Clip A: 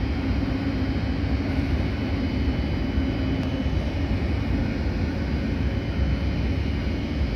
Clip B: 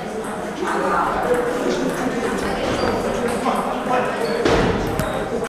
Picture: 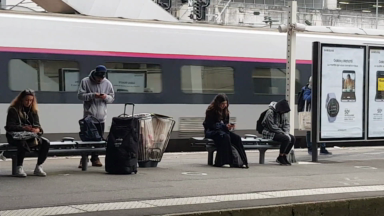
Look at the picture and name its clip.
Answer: A